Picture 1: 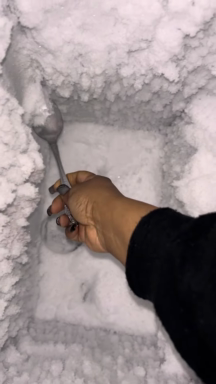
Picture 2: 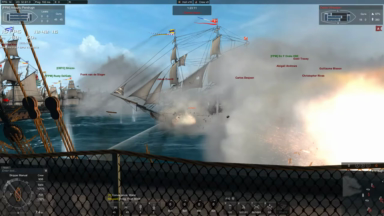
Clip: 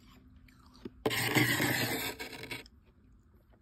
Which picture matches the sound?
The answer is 1